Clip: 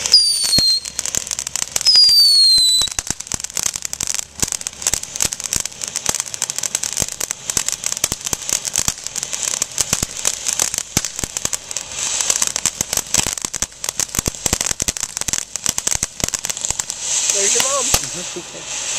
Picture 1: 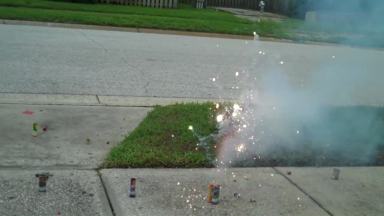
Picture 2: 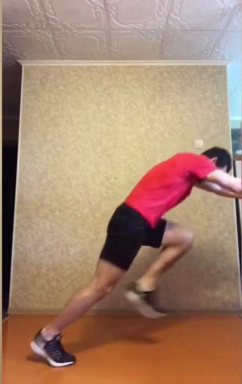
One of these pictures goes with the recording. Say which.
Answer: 1